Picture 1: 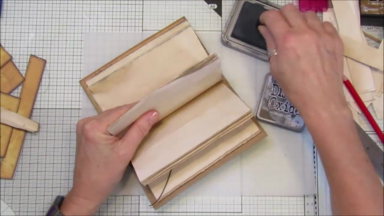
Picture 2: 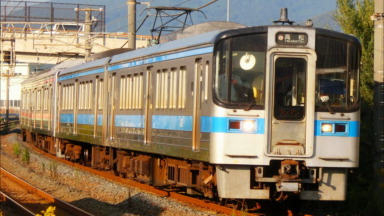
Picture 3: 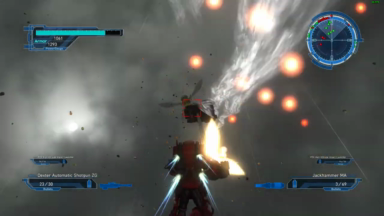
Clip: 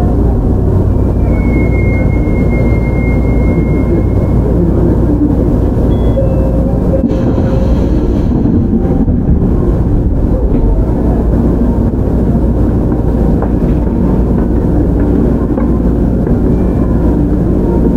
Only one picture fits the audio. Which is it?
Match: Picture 2